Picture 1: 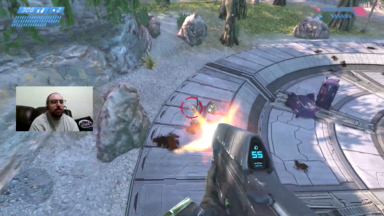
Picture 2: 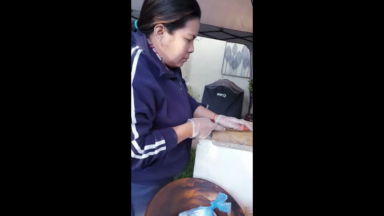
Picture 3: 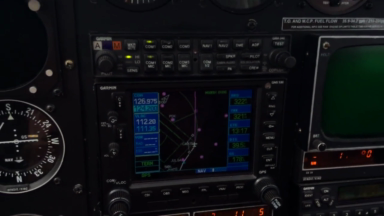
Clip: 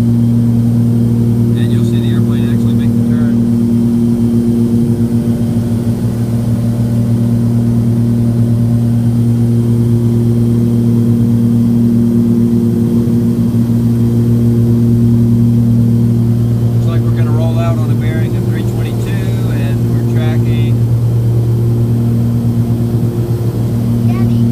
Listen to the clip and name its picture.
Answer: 3